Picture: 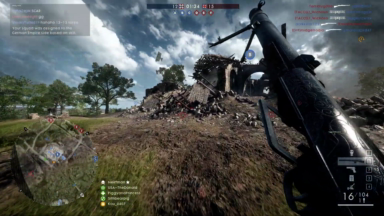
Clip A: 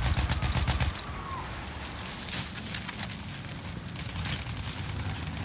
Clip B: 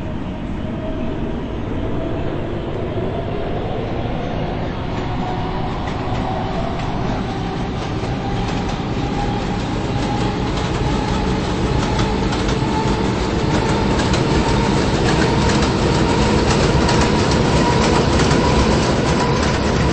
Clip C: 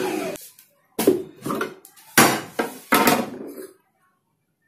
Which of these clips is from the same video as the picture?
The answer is A